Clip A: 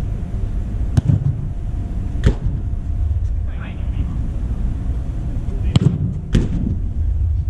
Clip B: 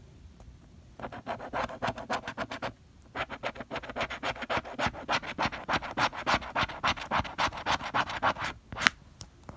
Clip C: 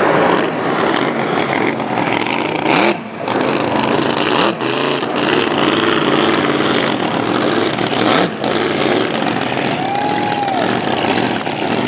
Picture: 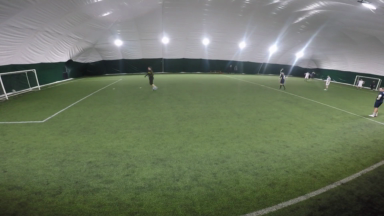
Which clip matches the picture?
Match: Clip A